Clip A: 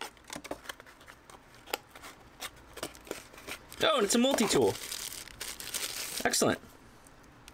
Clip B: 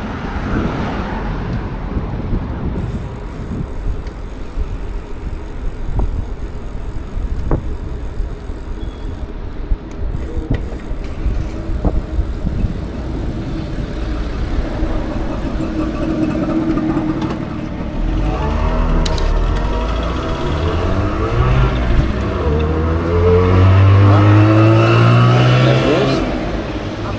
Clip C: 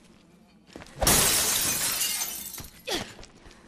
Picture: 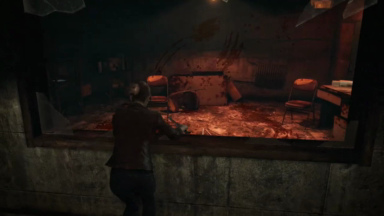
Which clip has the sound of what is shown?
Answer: C